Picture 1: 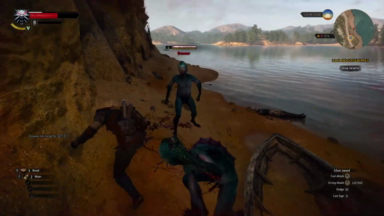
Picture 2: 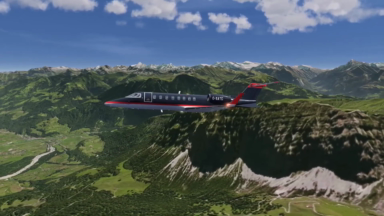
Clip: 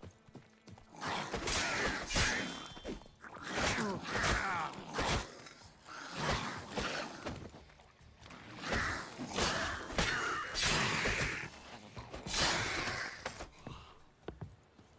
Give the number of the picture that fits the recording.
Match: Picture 1